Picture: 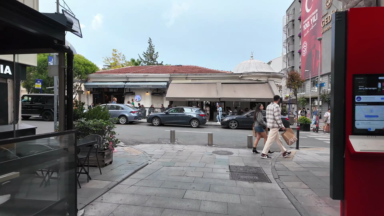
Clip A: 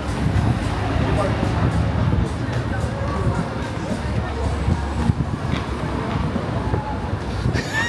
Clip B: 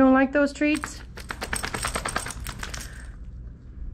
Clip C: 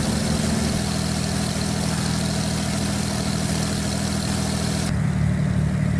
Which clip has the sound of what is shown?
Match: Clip A